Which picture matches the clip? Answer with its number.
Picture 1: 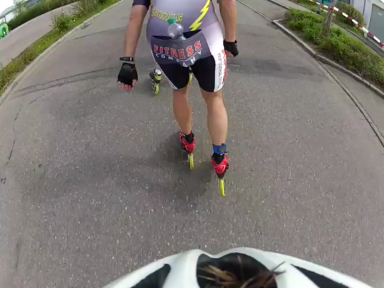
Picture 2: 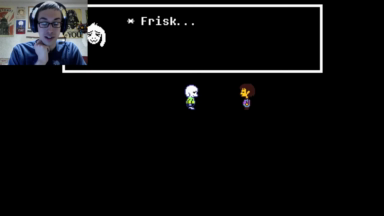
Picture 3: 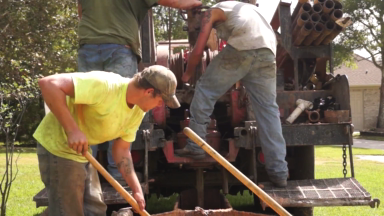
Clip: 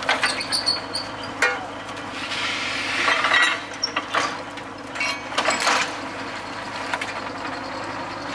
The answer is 3